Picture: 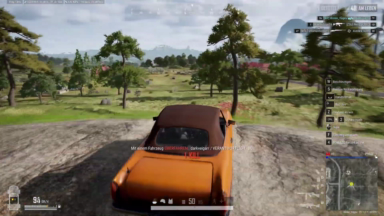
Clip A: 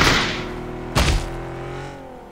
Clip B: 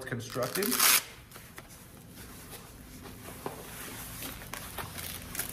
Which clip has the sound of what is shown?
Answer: A